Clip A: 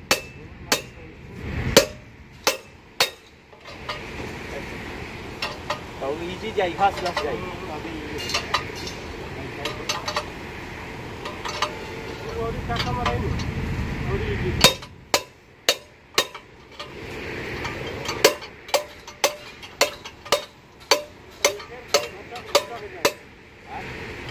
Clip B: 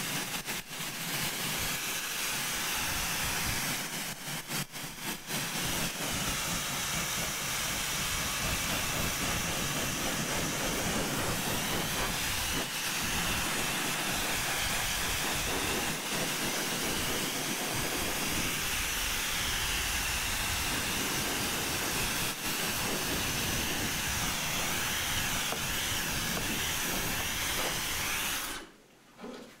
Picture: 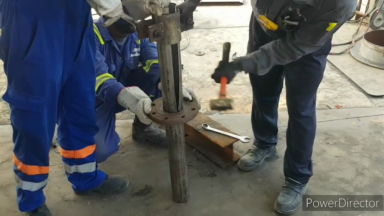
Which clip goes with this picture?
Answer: A